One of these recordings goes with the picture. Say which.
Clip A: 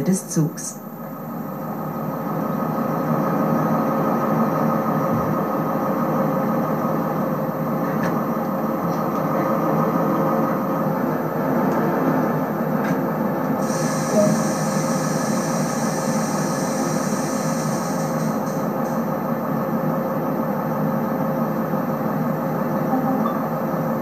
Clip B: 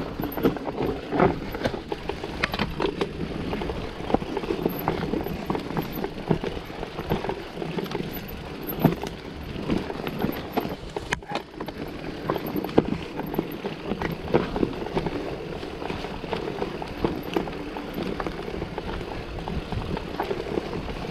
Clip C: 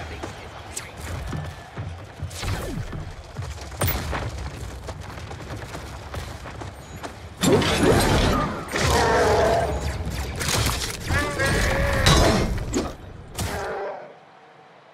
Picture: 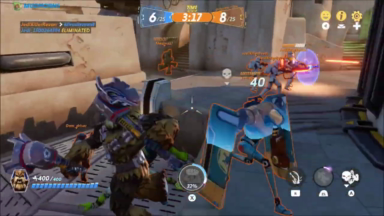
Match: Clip C